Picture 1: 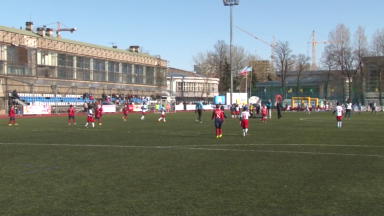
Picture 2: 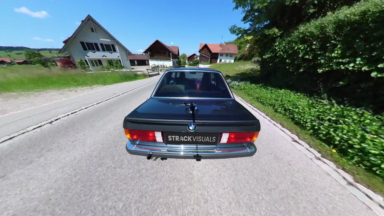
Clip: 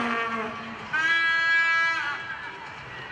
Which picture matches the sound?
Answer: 1